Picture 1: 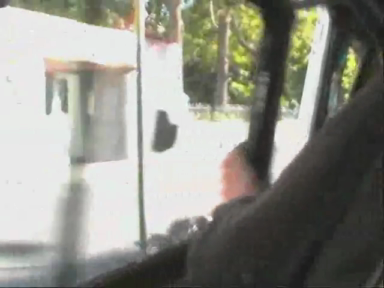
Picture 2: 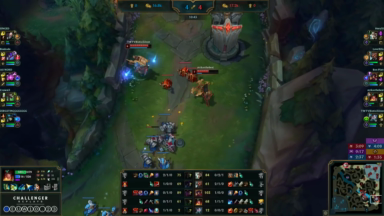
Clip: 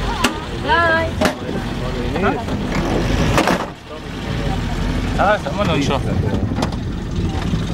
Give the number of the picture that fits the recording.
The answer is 1